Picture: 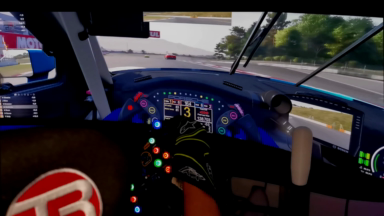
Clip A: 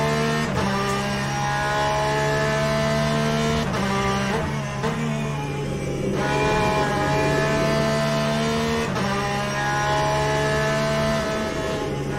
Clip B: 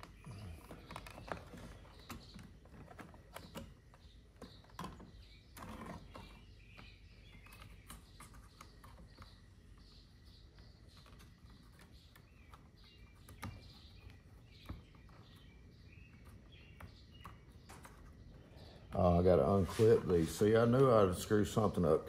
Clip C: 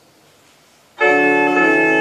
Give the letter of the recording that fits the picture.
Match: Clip A